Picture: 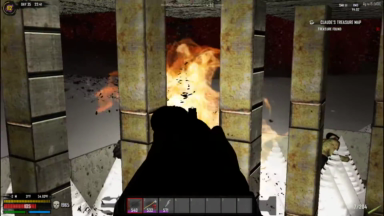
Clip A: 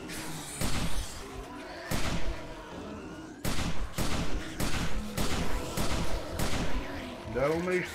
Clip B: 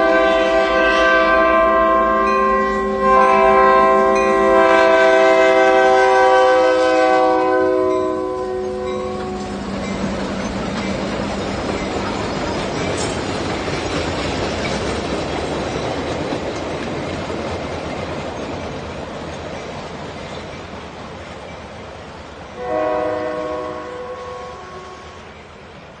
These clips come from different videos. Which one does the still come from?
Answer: A